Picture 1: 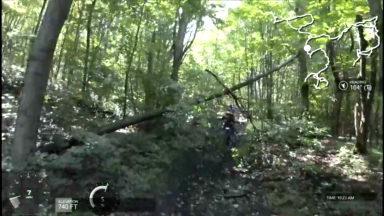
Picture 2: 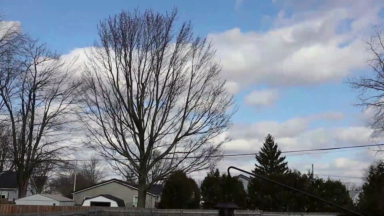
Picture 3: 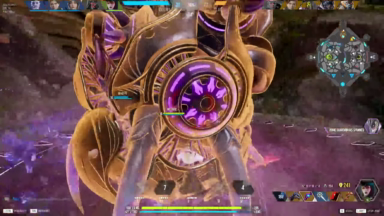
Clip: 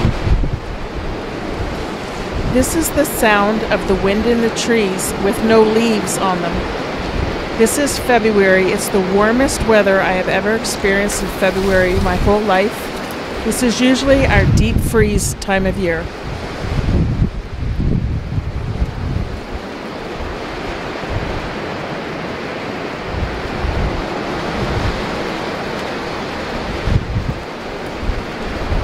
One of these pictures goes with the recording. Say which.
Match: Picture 2